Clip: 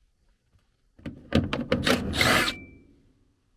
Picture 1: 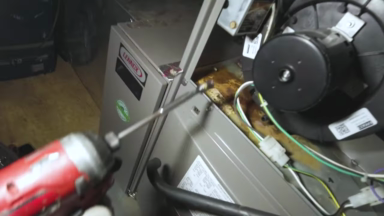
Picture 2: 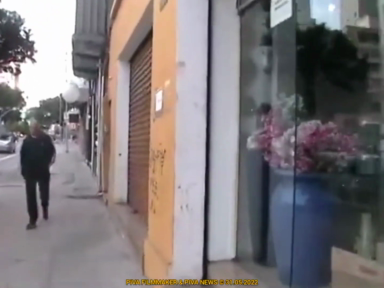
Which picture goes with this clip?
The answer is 1